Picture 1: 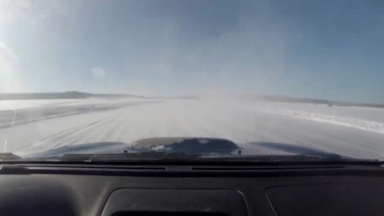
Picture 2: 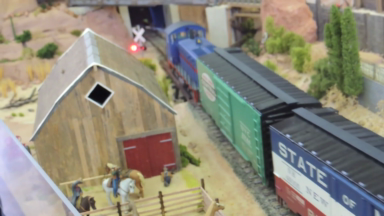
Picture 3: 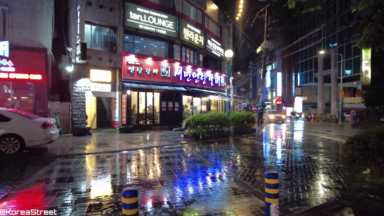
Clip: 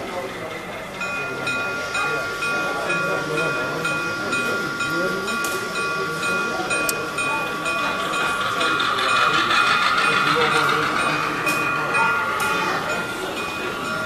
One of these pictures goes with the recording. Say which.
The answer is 2